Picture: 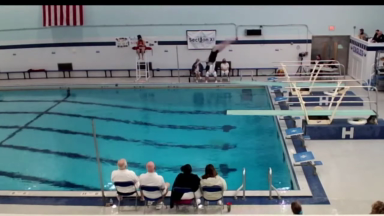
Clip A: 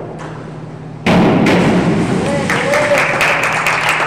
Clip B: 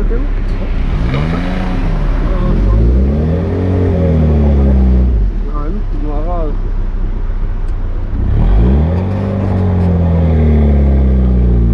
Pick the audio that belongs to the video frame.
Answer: A